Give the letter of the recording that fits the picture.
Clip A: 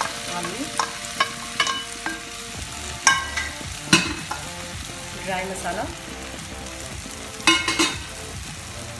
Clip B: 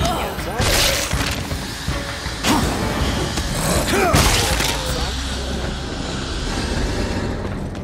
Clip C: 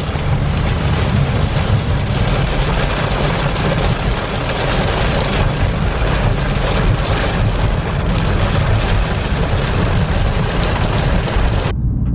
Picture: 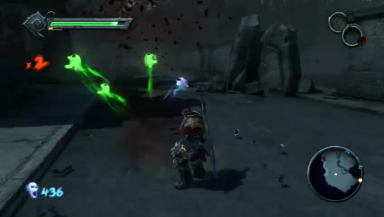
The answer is B